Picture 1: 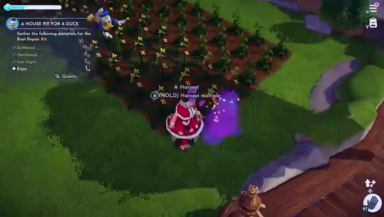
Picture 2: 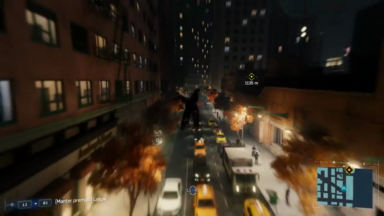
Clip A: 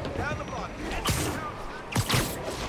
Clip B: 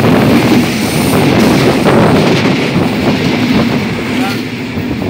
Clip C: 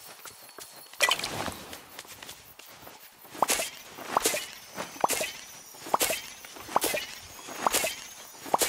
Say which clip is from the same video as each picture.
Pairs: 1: C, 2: A